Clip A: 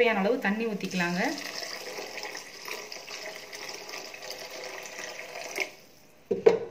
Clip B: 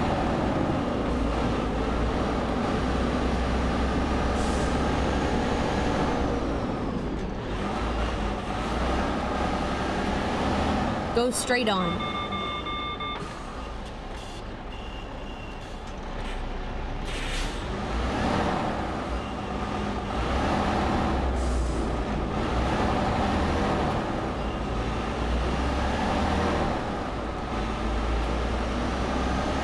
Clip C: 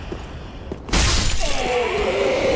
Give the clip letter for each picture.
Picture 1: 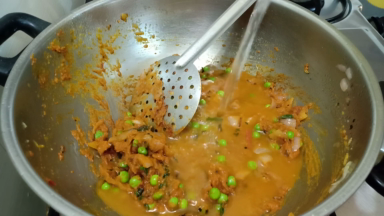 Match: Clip A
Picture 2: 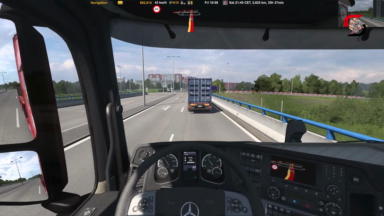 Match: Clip B